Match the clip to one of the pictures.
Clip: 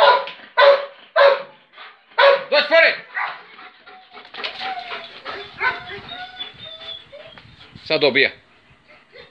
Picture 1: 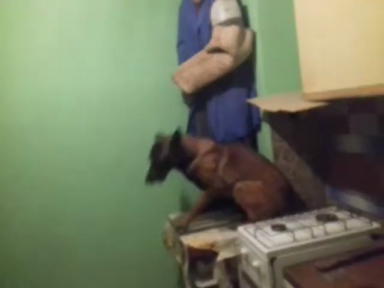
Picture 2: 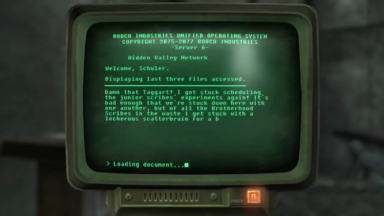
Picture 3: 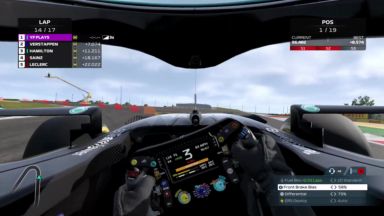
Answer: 1